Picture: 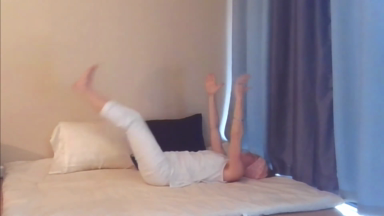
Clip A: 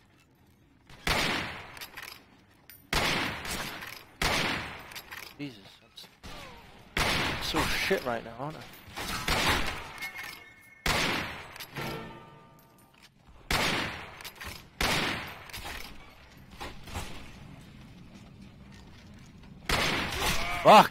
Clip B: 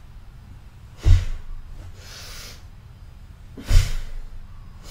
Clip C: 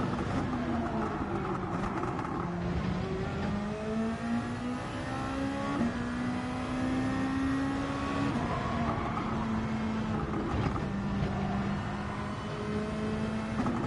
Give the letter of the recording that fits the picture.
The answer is B